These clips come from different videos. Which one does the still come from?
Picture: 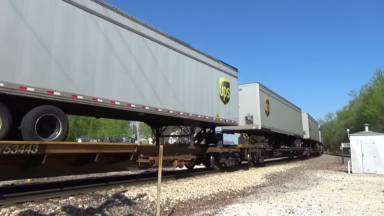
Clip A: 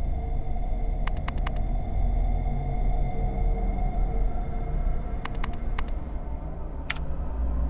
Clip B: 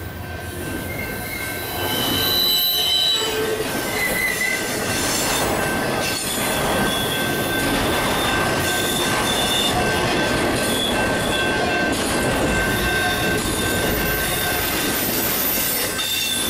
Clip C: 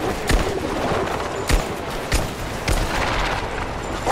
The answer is B